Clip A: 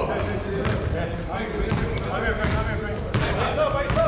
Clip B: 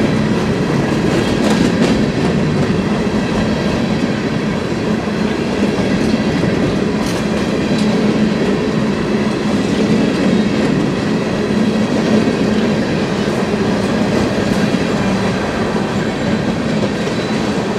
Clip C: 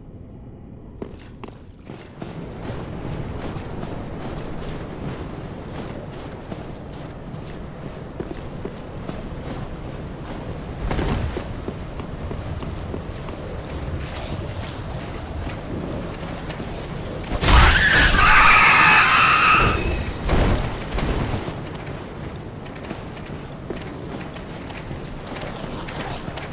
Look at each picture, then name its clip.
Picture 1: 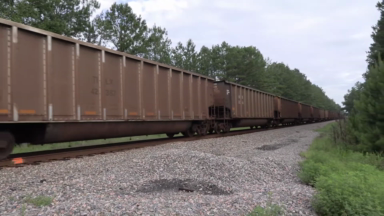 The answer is B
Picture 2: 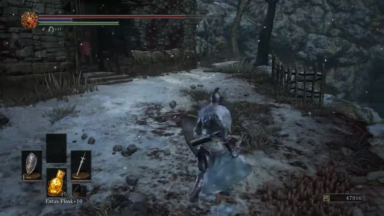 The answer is C